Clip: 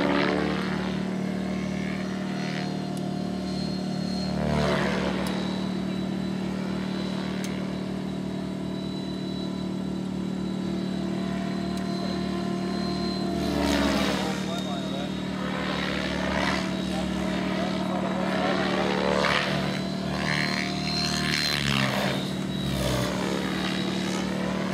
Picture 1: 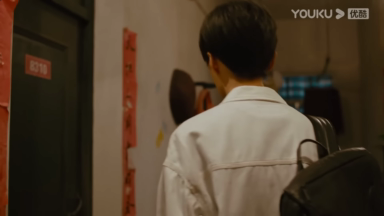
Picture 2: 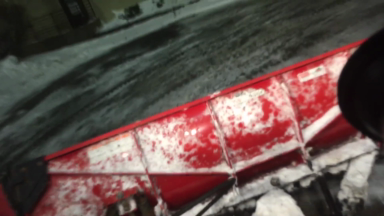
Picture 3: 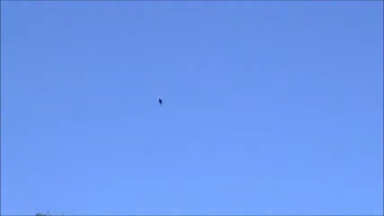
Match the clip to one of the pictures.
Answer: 3